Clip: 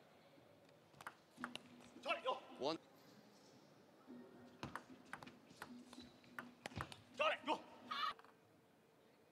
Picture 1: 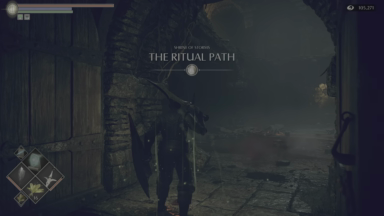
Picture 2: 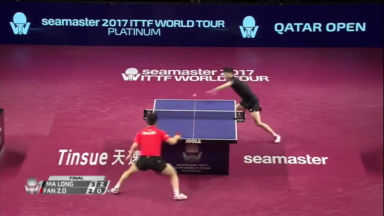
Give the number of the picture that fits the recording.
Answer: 2